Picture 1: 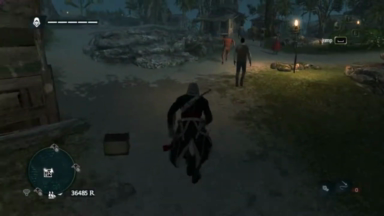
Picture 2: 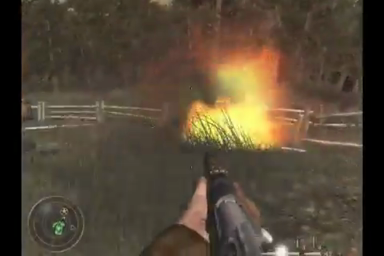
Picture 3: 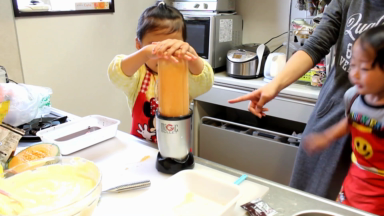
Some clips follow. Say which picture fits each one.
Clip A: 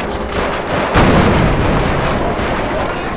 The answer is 2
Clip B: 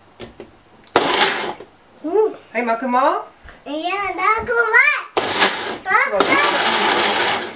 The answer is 3